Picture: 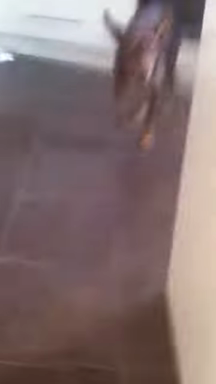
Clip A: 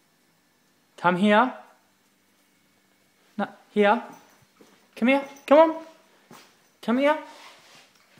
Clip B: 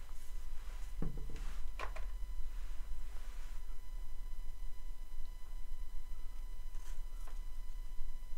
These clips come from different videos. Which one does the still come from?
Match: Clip A